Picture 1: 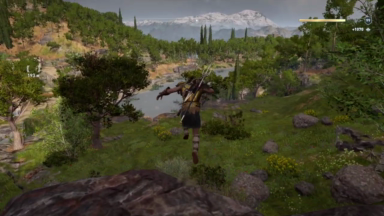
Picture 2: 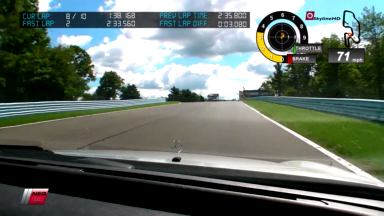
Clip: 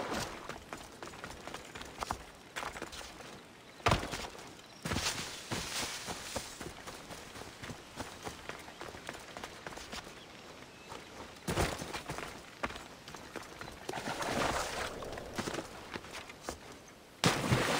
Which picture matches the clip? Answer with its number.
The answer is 1